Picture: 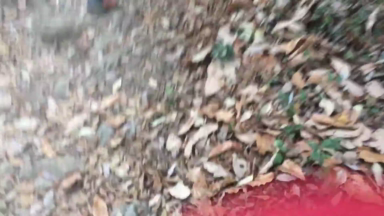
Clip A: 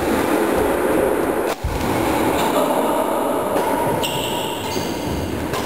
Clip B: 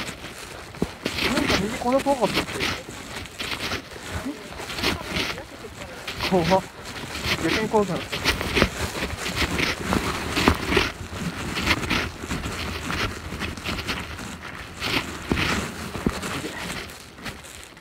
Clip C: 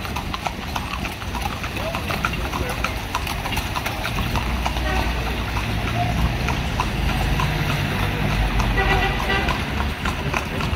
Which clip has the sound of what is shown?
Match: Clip B